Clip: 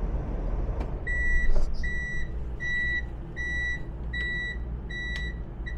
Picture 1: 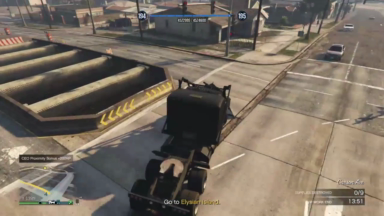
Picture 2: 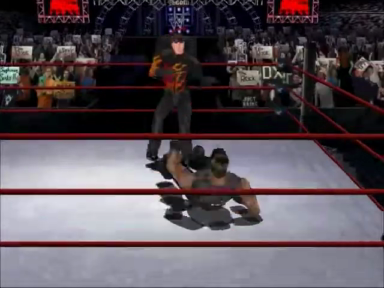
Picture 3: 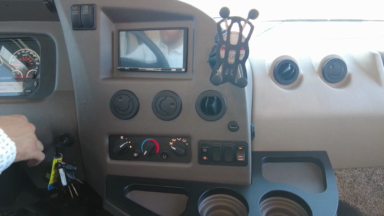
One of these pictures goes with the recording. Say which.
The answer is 3